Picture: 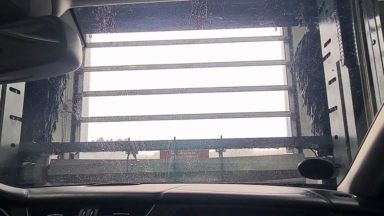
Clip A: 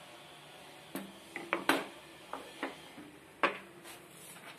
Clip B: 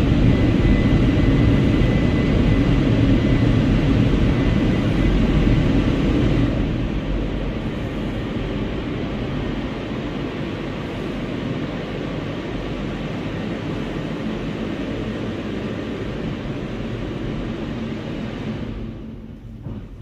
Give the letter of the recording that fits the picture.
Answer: B